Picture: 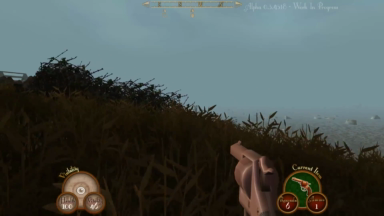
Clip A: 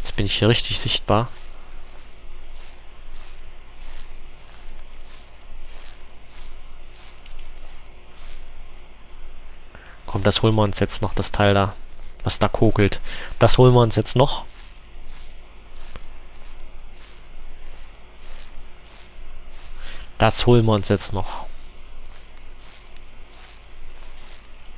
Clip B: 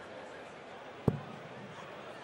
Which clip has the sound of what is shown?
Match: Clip A